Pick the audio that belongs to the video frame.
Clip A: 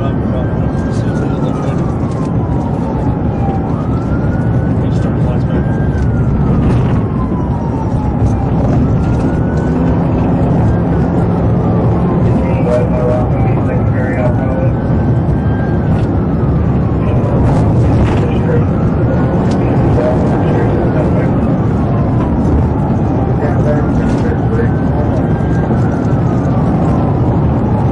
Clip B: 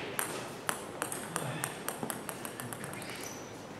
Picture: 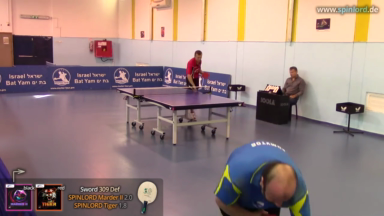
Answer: B